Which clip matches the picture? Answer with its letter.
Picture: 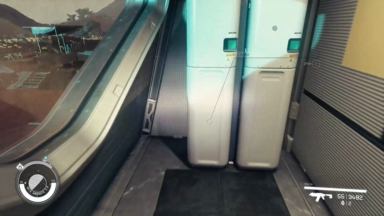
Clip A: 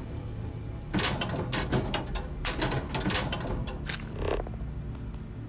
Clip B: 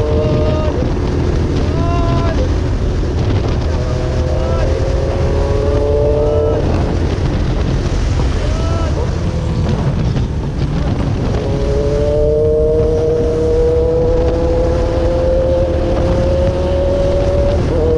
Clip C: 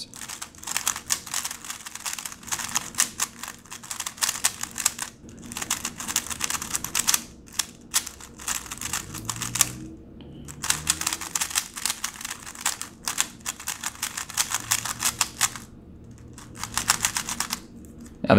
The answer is A